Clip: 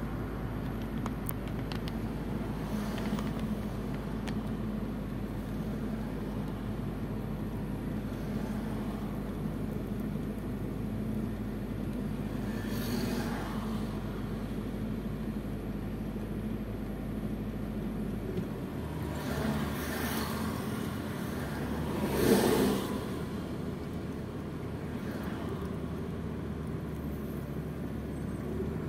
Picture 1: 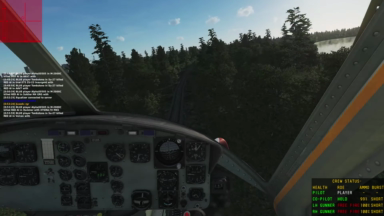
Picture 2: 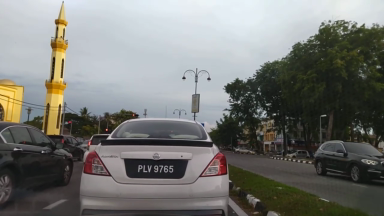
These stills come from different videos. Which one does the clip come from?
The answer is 2